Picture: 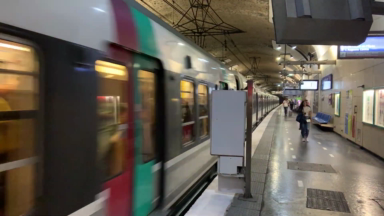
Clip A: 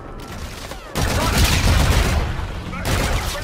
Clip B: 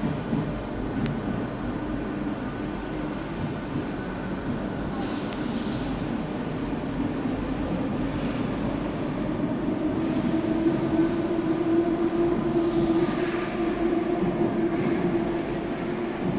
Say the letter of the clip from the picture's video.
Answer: B